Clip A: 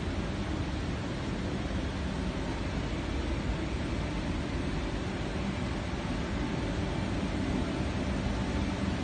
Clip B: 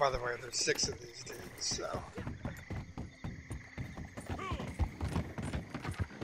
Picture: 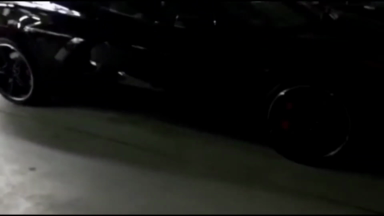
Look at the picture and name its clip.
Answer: A